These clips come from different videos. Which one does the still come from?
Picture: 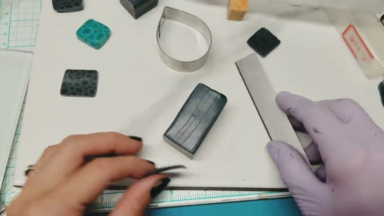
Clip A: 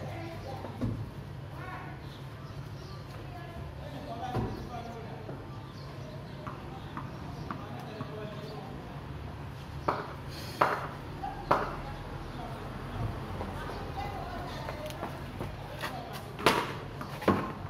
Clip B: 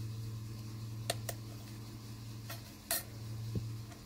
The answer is B